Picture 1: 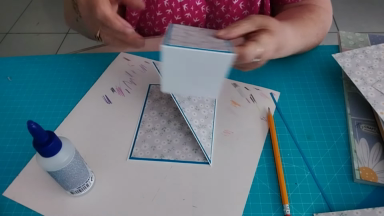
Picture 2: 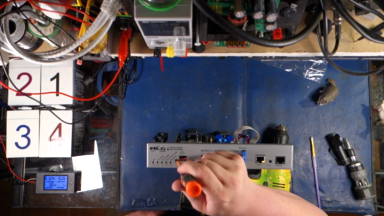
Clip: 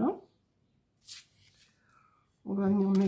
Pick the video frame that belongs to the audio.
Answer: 1